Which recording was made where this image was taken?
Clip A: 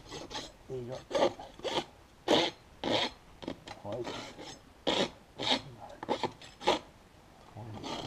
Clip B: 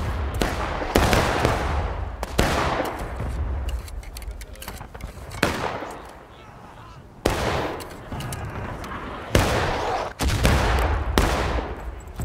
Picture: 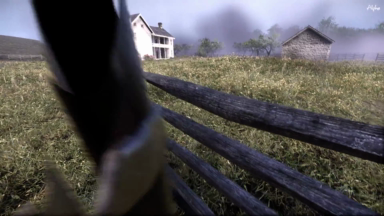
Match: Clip B